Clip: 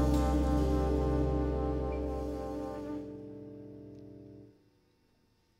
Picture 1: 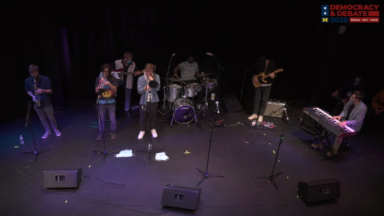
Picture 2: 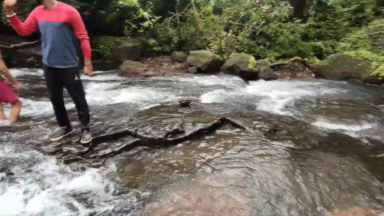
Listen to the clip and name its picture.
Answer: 1